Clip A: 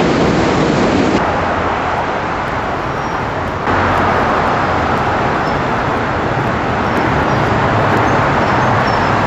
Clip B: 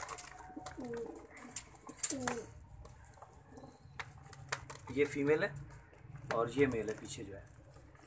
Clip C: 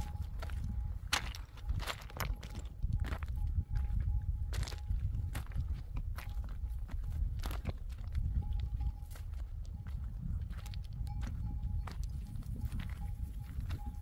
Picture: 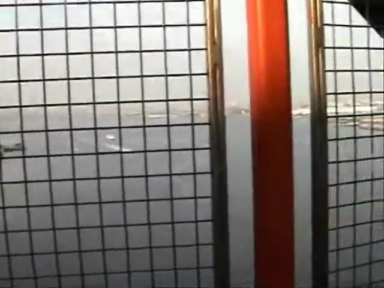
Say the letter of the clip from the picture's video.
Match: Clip A